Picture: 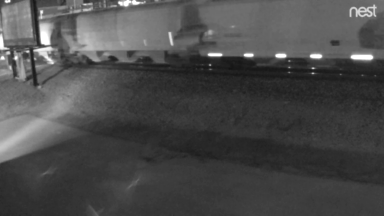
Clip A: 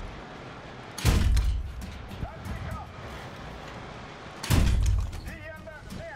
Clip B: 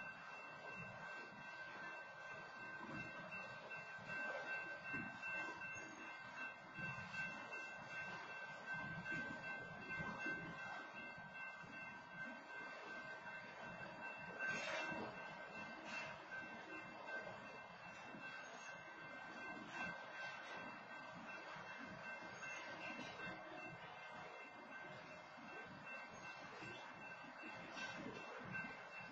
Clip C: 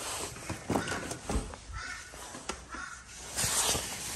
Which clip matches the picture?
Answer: B